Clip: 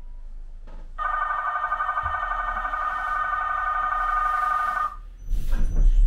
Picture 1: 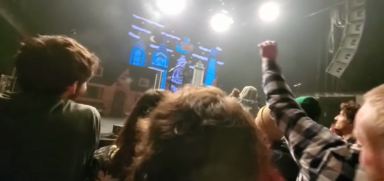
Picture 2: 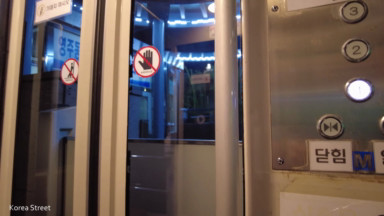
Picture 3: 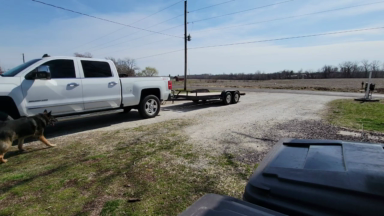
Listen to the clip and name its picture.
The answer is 2